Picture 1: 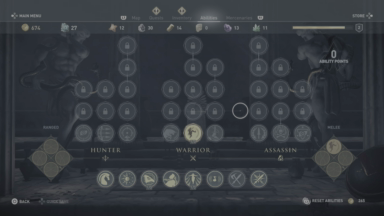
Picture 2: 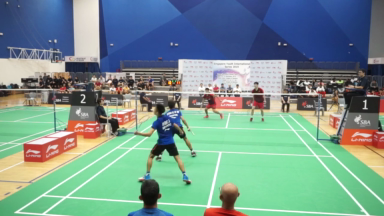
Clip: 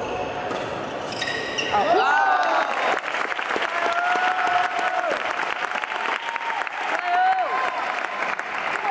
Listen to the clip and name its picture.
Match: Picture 2